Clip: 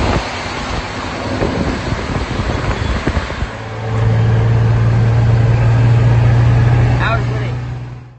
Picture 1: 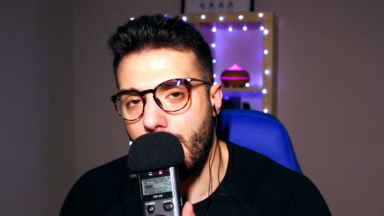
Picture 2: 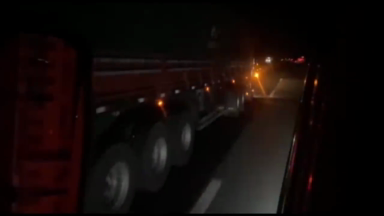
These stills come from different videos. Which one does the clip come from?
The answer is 2